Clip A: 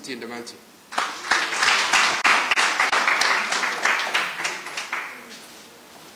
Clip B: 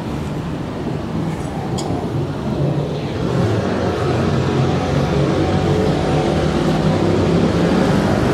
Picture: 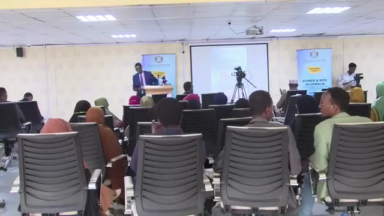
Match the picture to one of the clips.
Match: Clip A